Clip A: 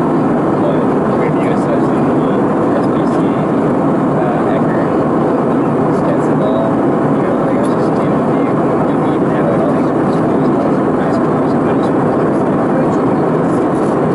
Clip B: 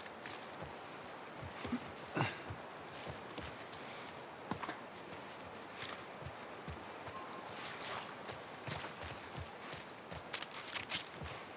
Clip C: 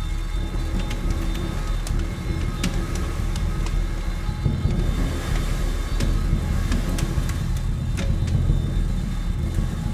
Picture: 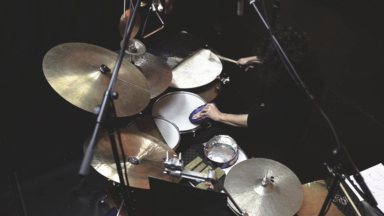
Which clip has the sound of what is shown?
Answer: C